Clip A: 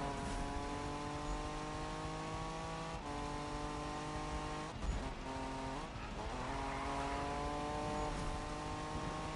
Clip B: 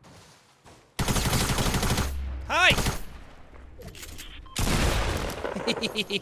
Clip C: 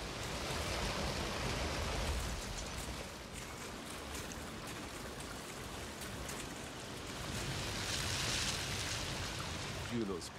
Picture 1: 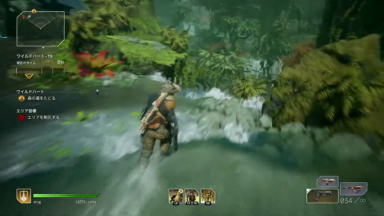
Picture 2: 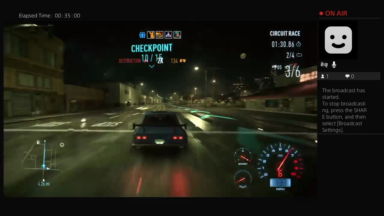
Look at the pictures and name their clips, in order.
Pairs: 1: C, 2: A